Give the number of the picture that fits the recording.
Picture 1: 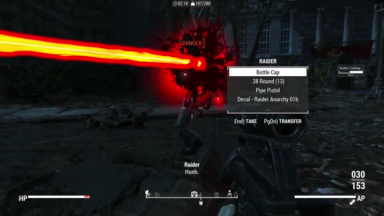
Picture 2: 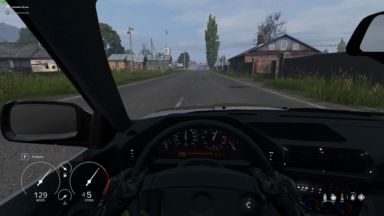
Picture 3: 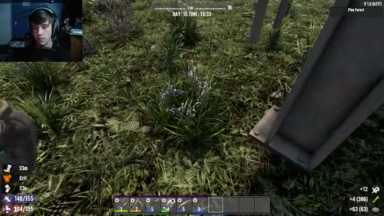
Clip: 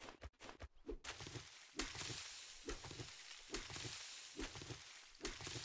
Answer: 3